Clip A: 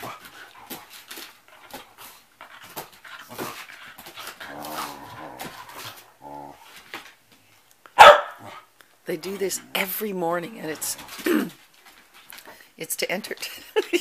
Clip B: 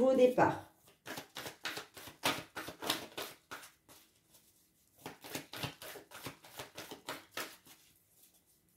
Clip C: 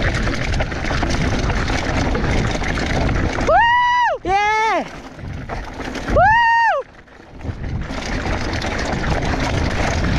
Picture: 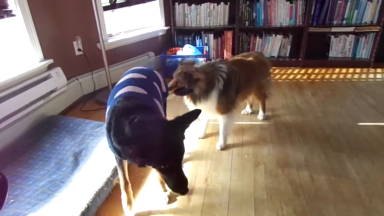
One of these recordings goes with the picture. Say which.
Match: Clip A